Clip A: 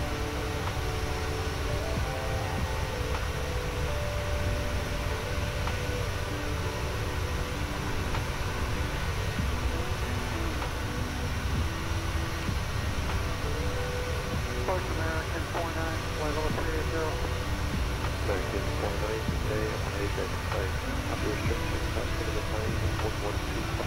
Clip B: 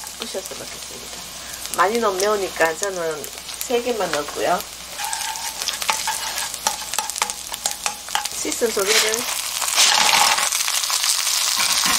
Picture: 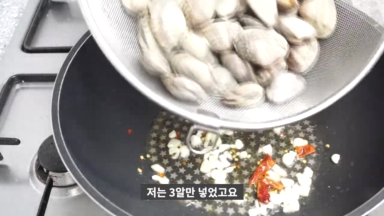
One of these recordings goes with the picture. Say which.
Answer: B